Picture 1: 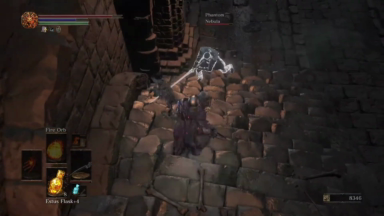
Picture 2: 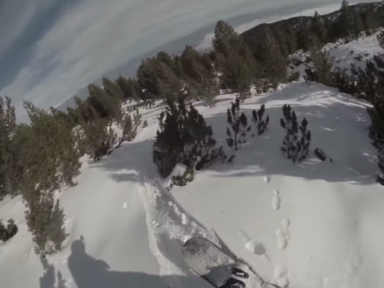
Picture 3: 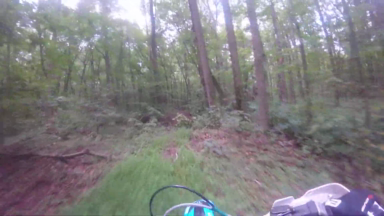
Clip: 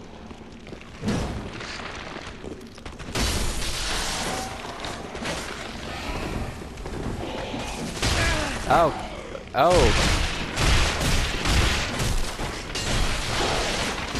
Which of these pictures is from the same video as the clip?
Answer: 1